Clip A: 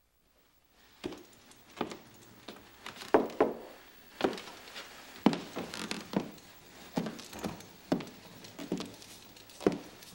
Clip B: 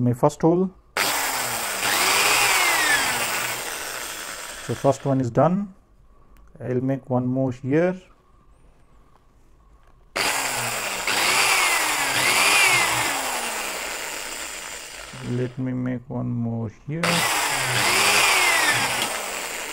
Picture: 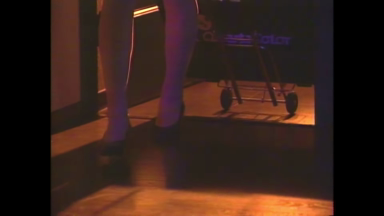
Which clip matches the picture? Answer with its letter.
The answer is A